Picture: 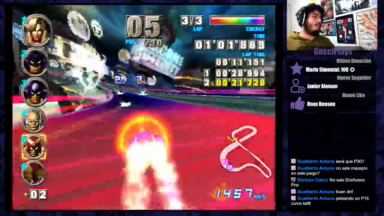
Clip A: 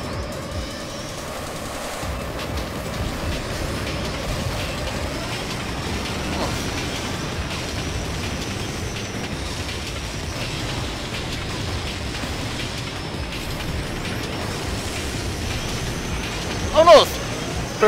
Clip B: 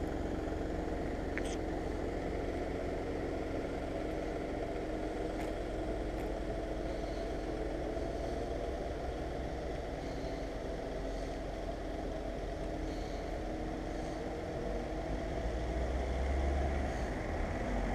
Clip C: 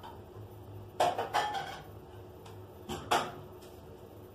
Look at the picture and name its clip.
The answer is A